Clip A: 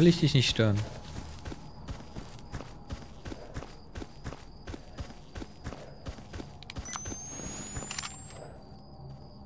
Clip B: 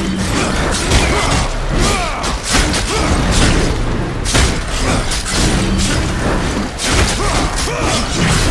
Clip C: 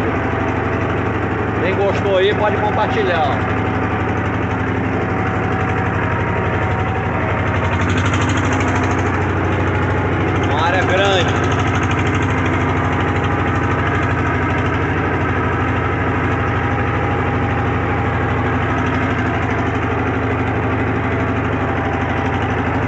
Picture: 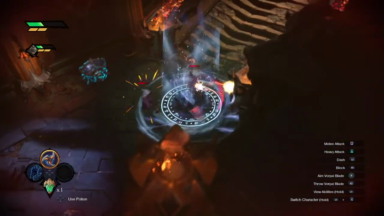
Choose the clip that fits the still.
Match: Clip B